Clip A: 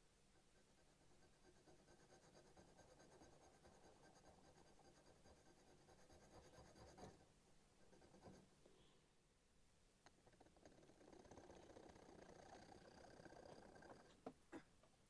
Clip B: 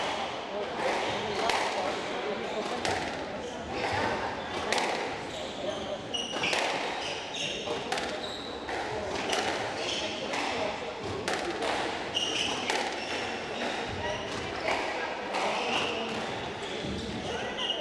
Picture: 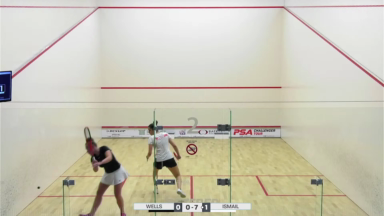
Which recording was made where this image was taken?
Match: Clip B